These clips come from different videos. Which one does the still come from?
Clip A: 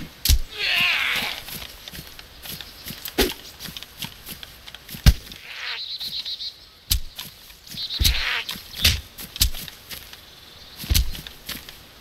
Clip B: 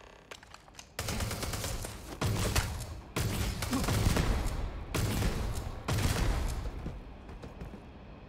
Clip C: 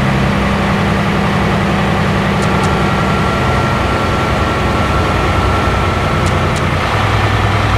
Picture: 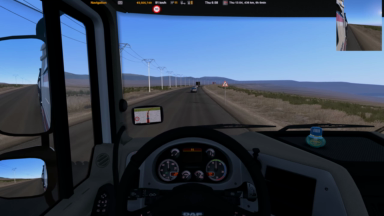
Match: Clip C